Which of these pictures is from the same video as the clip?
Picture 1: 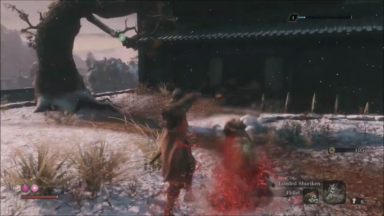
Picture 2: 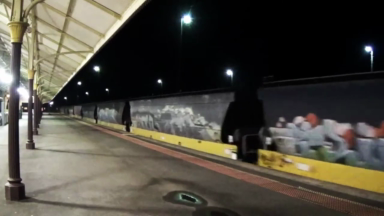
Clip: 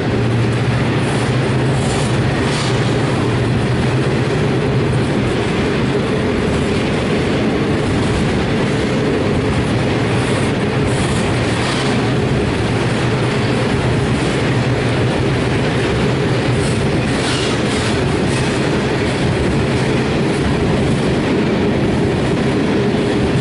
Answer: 2